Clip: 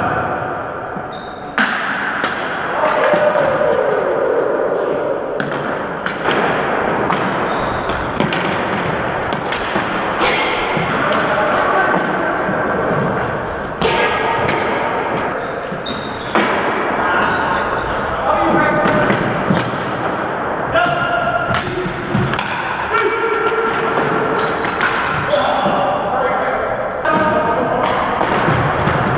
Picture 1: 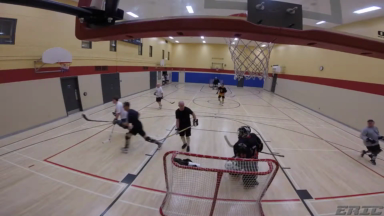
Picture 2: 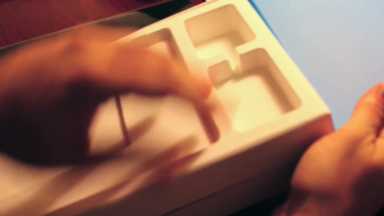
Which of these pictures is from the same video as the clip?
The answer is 1